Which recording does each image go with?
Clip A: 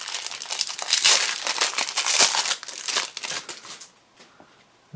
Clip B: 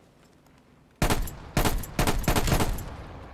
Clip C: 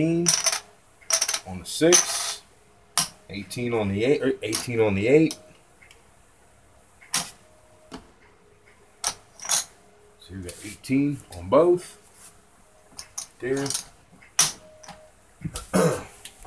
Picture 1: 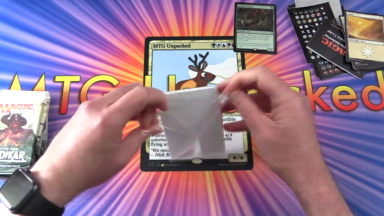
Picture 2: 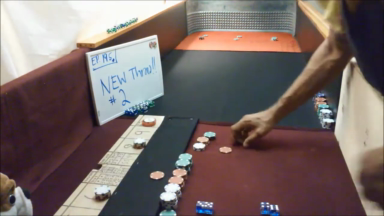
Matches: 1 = A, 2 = C